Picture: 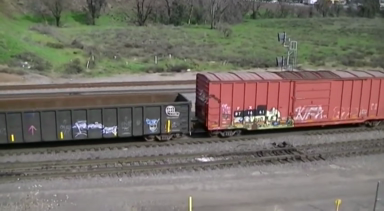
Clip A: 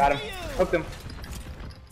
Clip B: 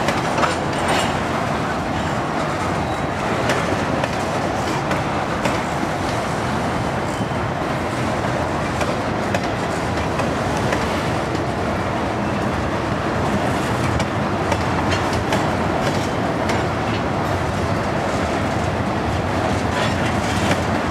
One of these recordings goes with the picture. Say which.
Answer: B